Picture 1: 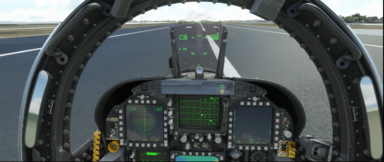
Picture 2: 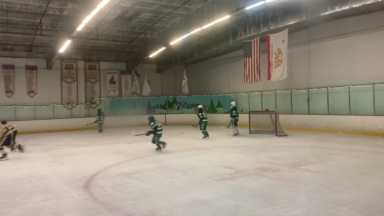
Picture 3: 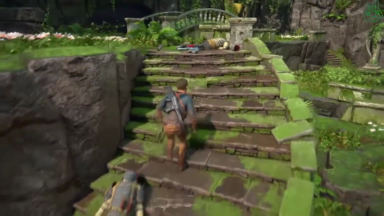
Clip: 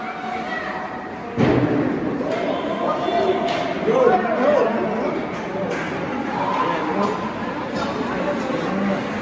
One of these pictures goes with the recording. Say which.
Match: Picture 2